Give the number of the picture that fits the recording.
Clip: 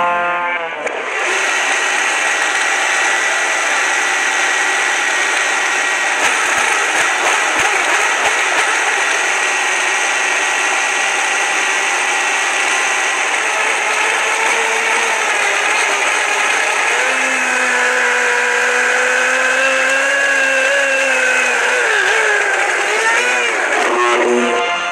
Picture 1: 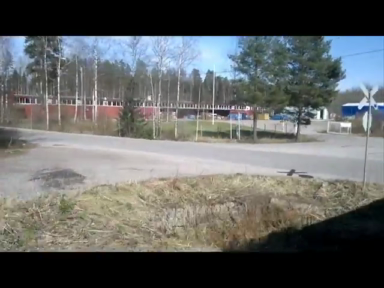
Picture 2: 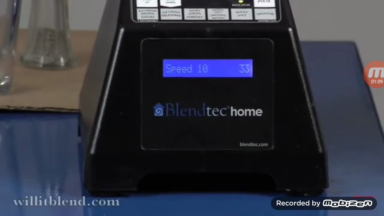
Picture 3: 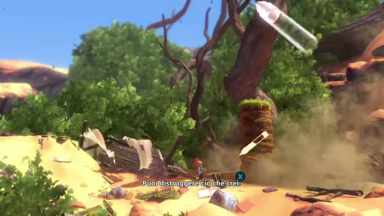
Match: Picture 2